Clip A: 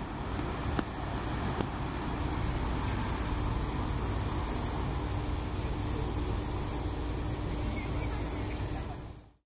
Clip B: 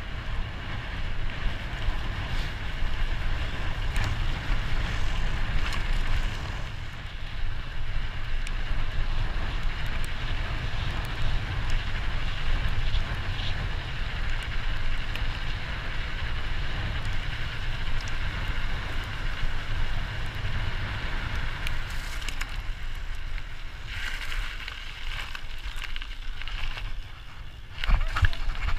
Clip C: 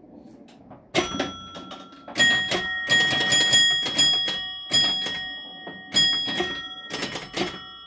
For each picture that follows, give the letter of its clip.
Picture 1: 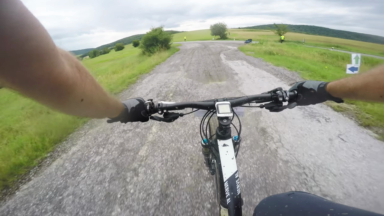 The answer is B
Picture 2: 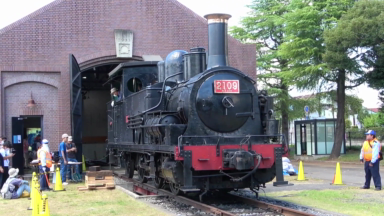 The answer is A